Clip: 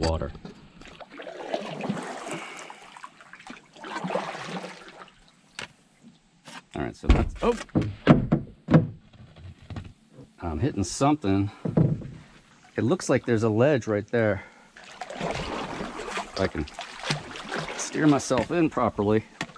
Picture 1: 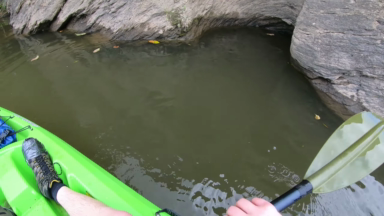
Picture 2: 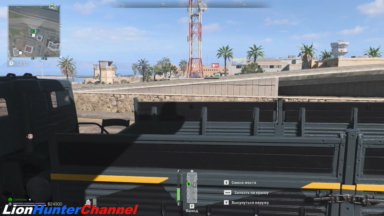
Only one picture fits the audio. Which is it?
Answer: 1